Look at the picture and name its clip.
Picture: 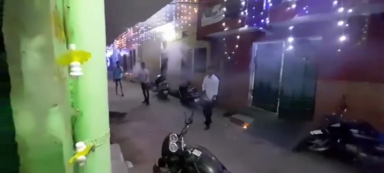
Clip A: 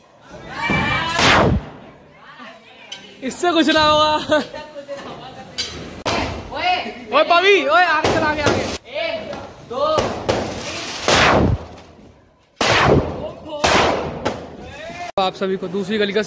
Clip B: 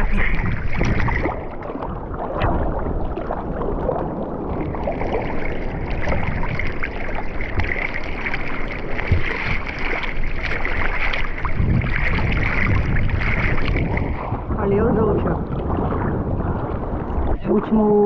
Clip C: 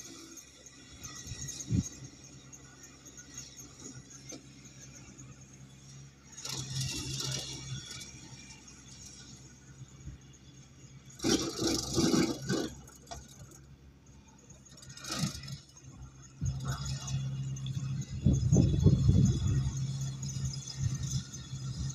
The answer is A